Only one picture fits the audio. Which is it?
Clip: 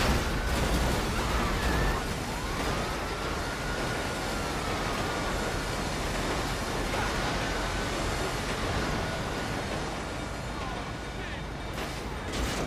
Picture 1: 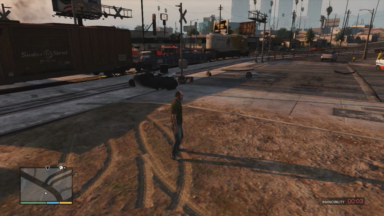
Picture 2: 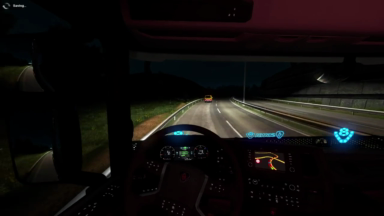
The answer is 1